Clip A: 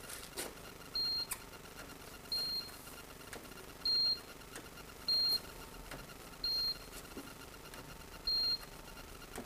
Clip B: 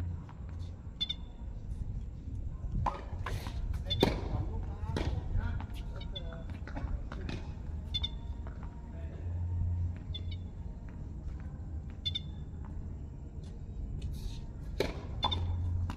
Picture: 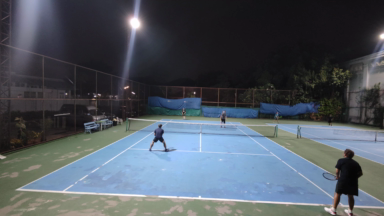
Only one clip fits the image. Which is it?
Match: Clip B